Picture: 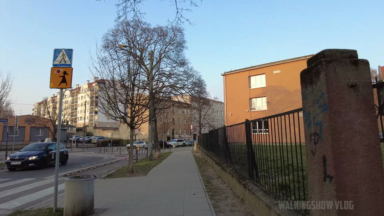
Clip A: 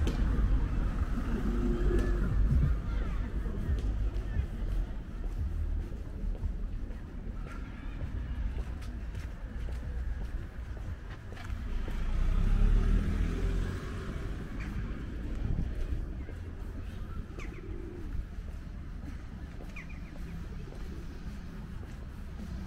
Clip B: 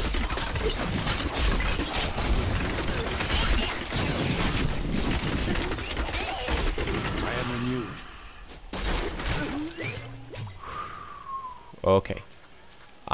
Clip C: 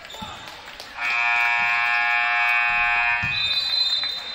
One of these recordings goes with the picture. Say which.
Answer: A